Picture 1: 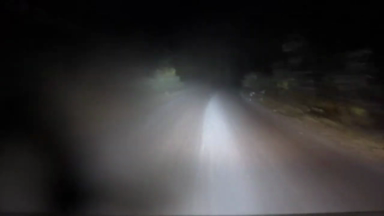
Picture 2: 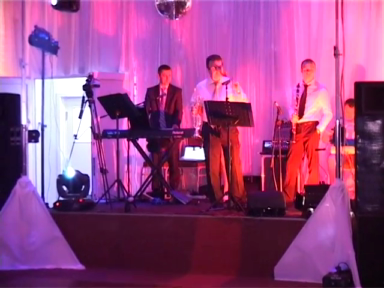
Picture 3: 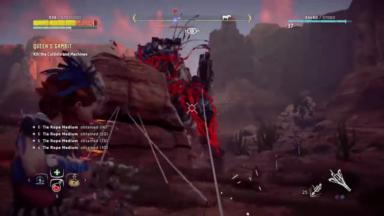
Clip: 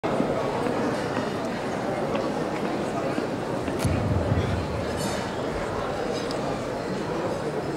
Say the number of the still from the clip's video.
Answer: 2